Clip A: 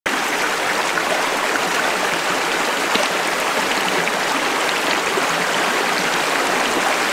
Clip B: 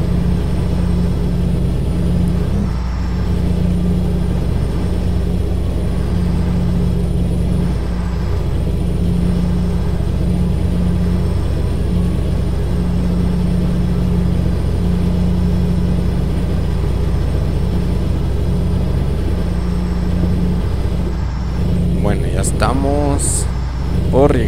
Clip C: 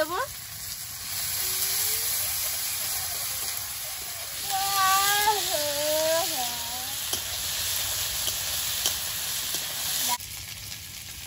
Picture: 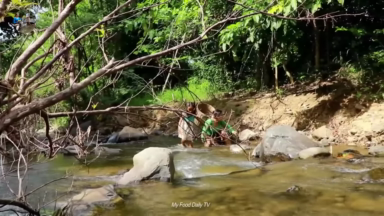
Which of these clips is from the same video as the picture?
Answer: A